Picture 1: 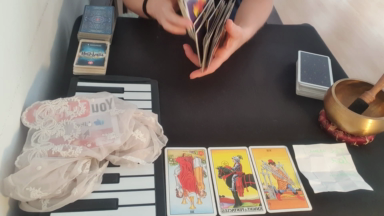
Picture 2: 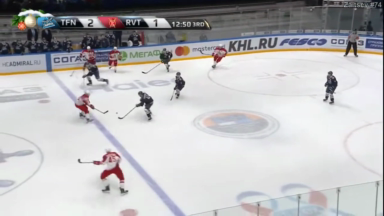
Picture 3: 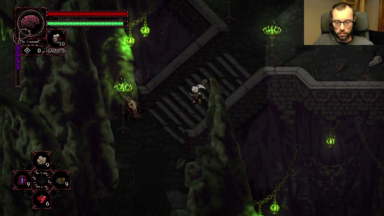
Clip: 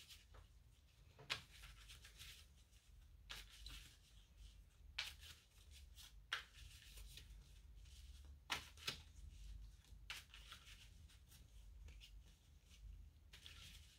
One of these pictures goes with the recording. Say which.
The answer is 1